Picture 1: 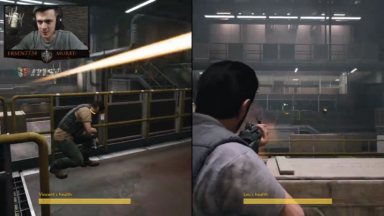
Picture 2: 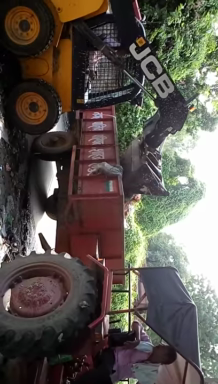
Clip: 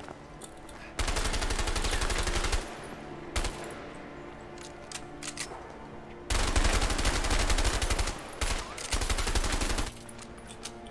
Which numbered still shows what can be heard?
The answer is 1